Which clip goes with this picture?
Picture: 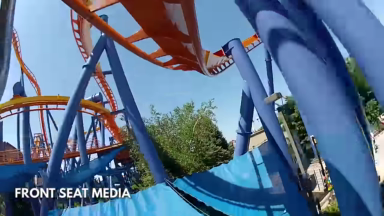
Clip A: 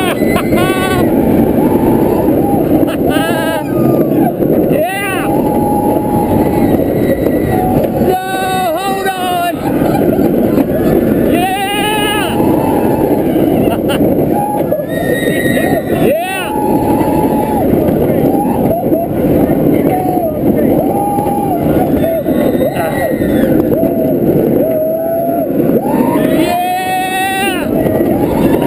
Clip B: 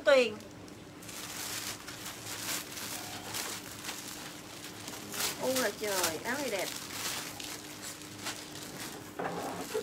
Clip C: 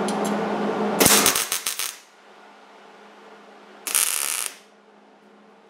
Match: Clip A